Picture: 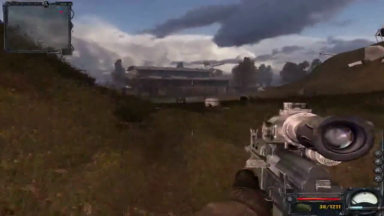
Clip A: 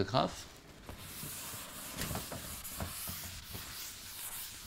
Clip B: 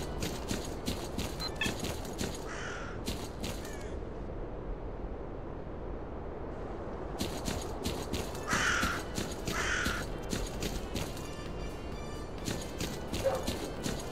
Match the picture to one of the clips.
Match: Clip B